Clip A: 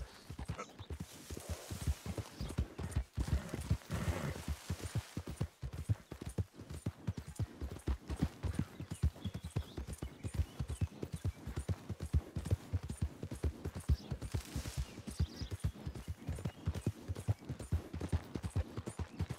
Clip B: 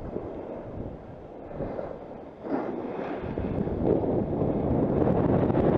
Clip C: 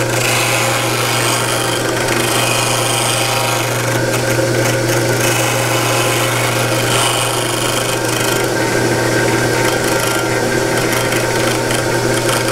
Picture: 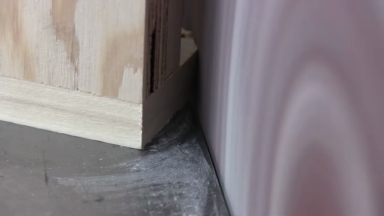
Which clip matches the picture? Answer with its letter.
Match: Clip C